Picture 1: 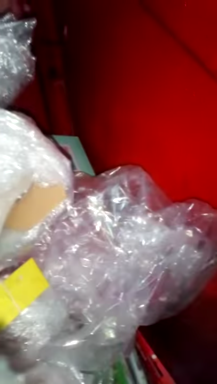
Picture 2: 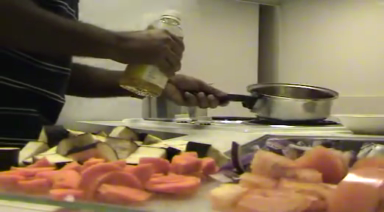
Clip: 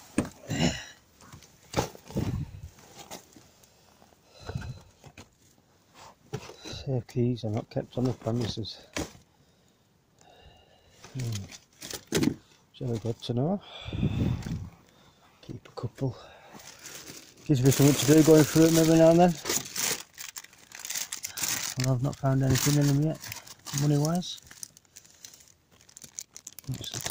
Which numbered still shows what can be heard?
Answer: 1